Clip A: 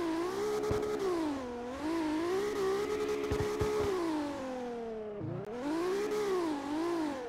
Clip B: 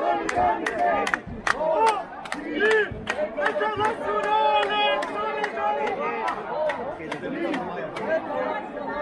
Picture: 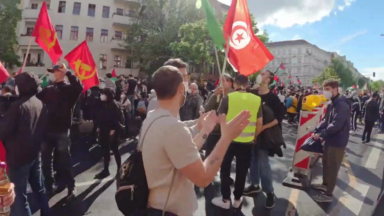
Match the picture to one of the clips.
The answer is B